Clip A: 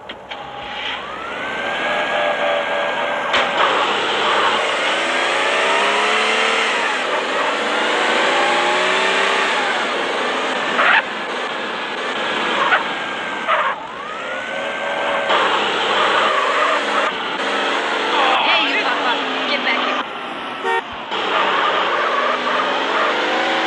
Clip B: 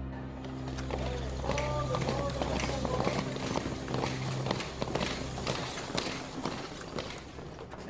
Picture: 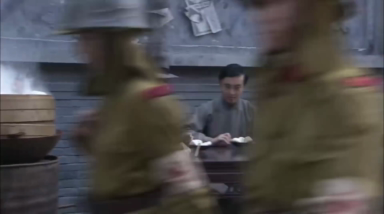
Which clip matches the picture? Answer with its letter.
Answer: B